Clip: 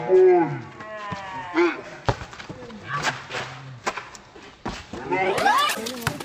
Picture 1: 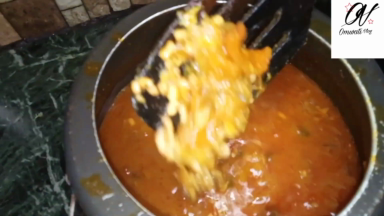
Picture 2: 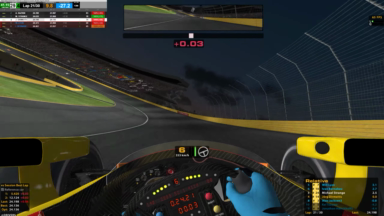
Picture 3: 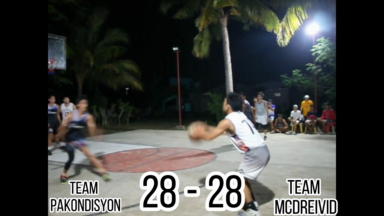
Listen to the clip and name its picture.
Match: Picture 3